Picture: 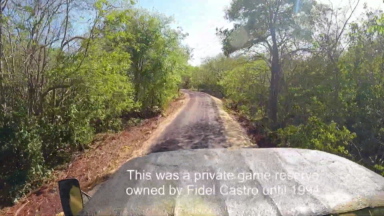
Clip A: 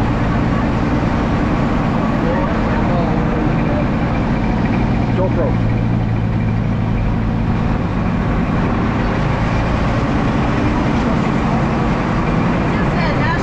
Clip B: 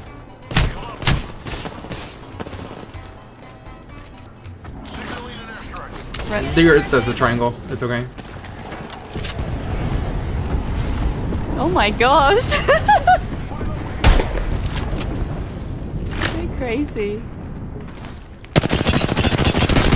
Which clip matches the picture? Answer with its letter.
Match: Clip A